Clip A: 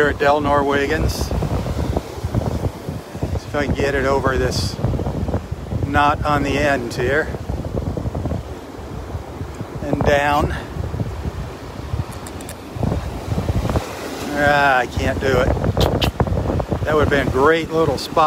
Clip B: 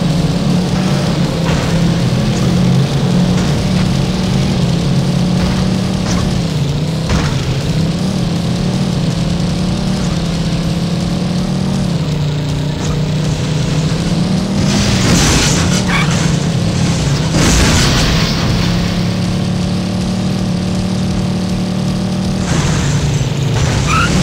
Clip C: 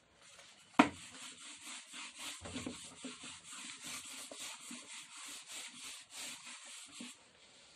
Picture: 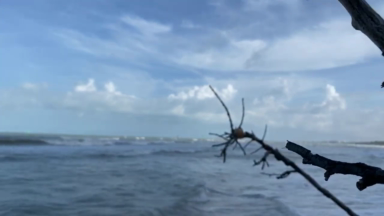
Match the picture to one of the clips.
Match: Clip A